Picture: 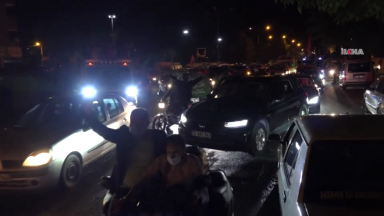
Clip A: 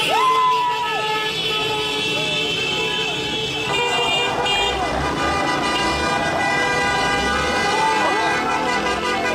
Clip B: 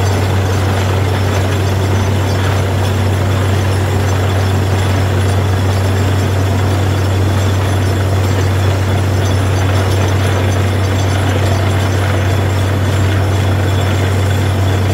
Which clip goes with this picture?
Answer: A